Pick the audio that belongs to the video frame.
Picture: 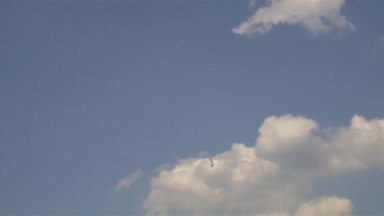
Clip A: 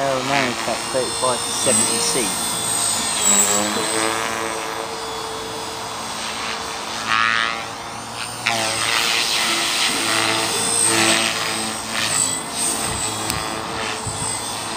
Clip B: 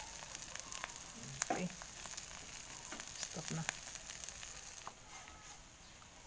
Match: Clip A